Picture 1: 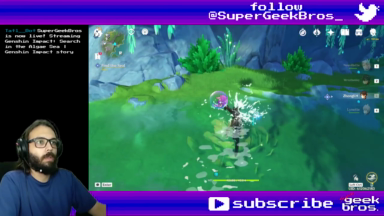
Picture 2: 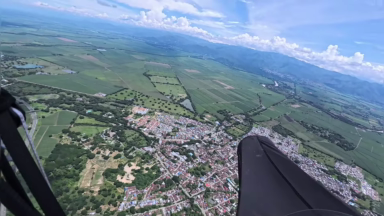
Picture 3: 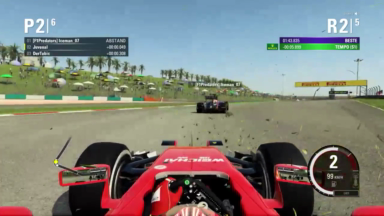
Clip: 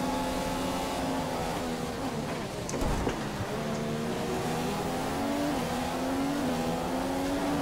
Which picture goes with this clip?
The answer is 3